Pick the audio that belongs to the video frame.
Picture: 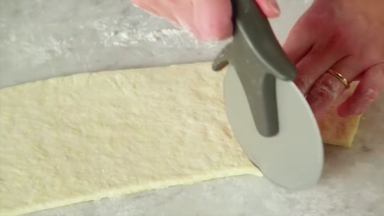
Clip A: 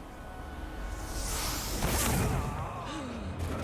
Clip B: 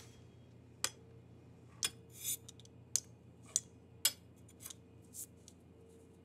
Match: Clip B